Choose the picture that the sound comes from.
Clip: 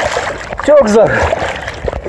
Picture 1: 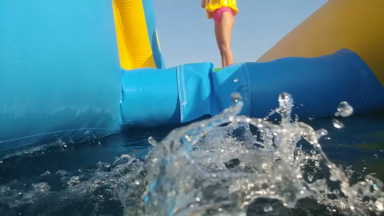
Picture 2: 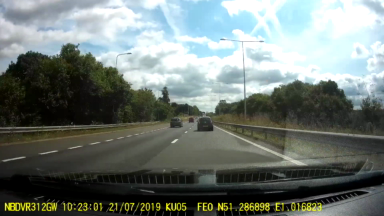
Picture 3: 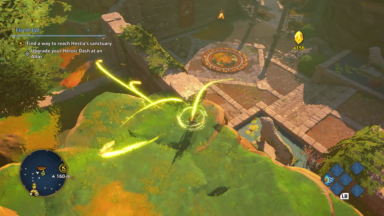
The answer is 1